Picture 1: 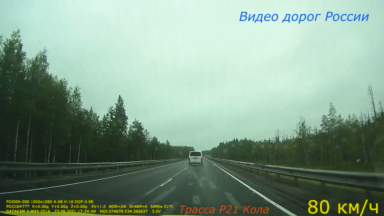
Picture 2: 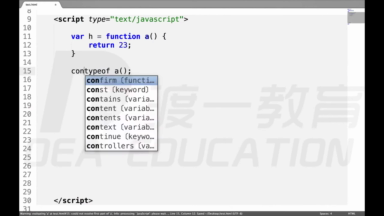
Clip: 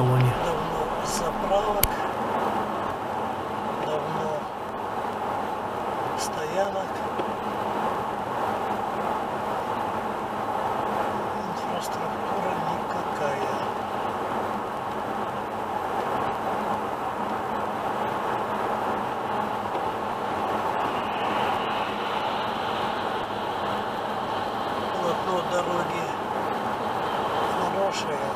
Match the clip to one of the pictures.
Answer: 1